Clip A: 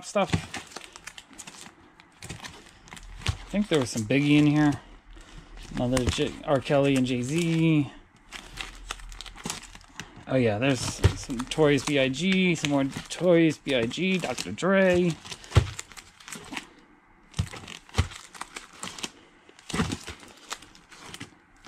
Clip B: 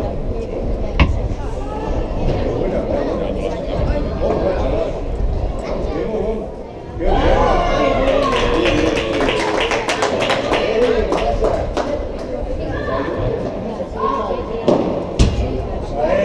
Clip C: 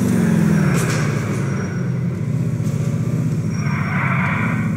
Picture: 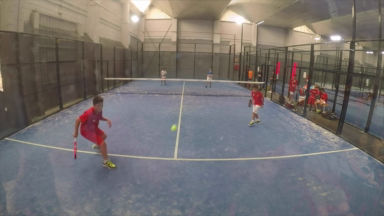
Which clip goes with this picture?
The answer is B